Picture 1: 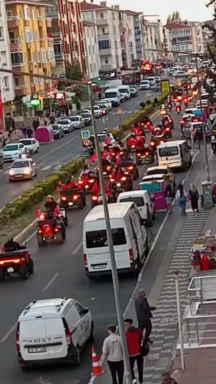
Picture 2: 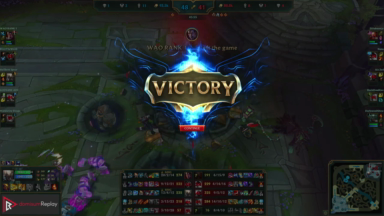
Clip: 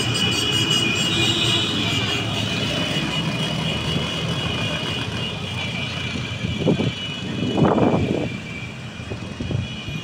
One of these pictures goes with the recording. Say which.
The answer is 1